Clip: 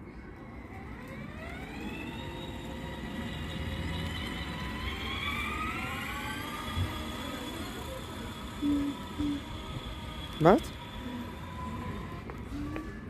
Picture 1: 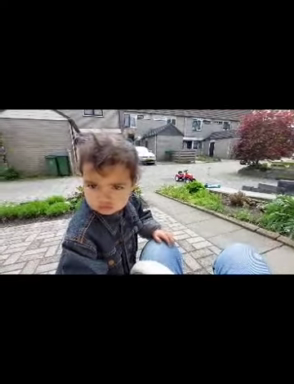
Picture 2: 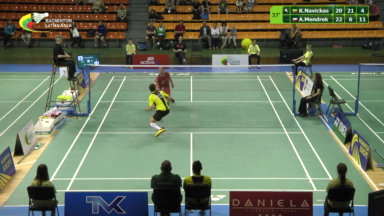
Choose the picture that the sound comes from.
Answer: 1